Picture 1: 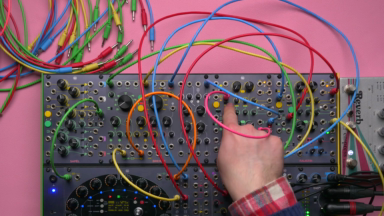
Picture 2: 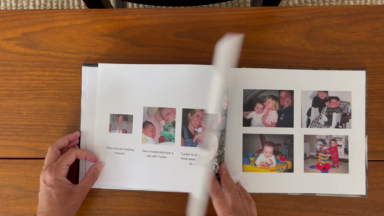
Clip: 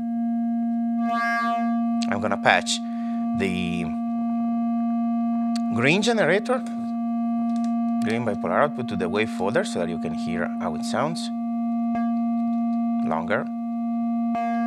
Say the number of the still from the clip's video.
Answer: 1